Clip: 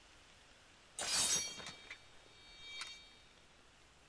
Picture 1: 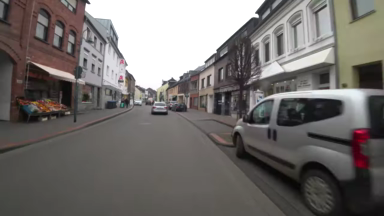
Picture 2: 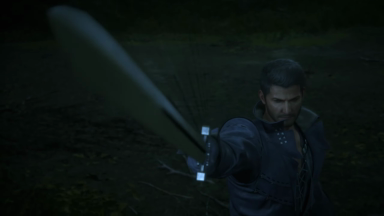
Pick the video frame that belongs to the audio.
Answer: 2